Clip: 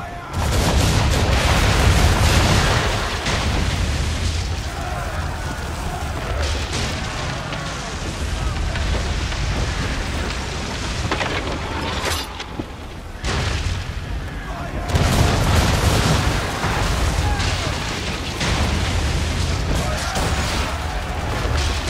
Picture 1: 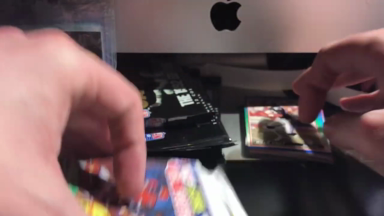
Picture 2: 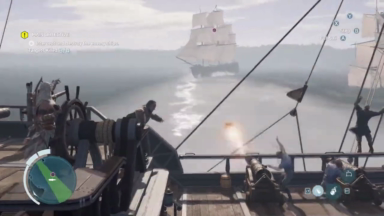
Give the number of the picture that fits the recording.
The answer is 2